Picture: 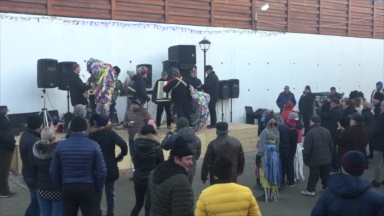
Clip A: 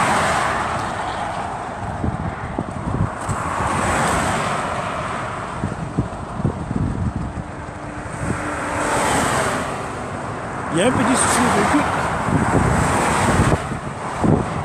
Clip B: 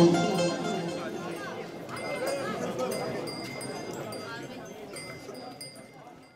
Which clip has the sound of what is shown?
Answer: B